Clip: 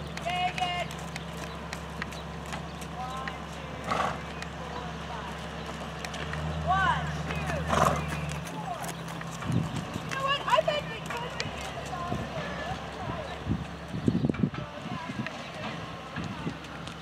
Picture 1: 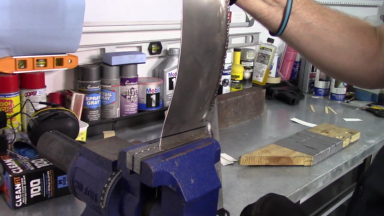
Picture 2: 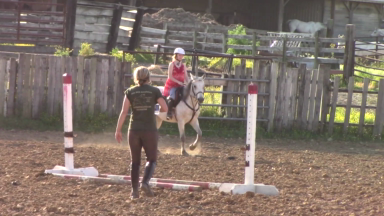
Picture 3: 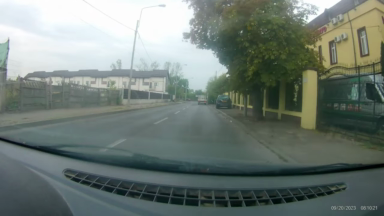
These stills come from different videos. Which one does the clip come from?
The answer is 2